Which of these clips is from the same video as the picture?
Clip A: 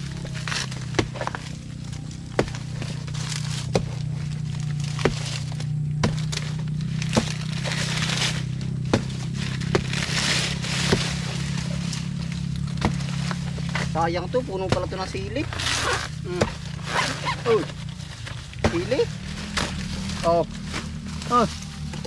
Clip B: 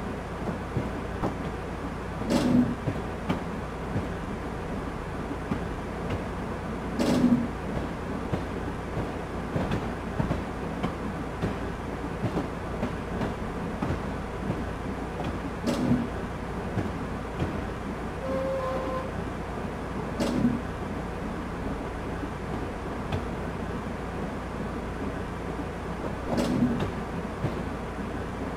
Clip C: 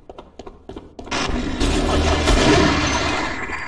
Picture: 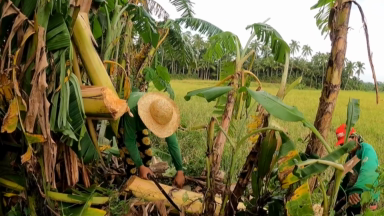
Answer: A